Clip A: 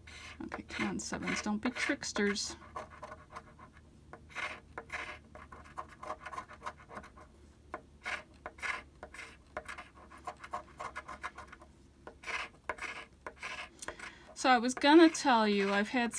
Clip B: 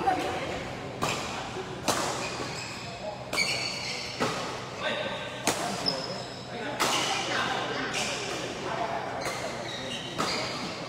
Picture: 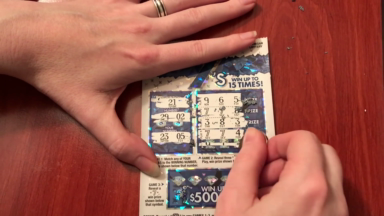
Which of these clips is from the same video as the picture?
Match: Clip A